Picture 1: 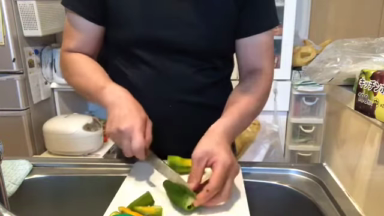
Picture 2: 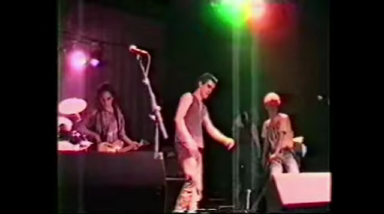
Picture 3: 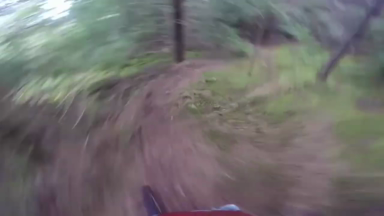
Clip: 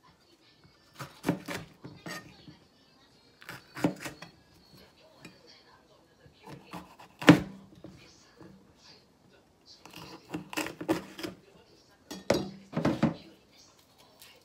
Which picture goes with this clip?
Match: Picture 1